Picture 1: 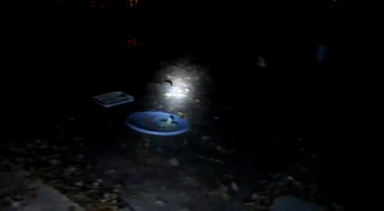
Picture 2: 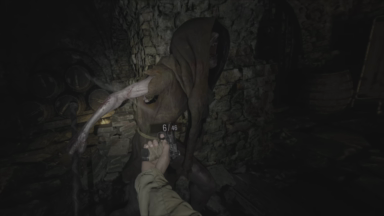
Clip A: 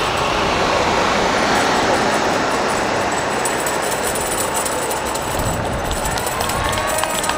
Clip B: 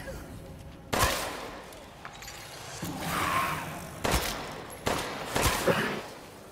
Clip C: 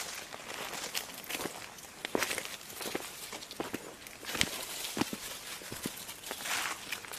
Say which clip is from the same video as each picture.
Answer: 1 C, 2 B